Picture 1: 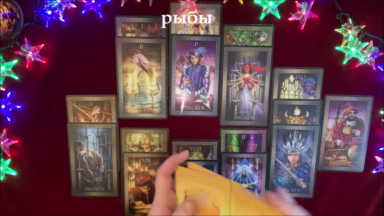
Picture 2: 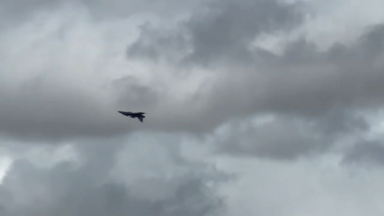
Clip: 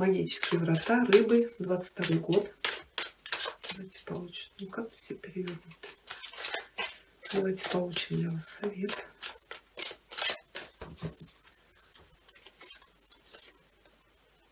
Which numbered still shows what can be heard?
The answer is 1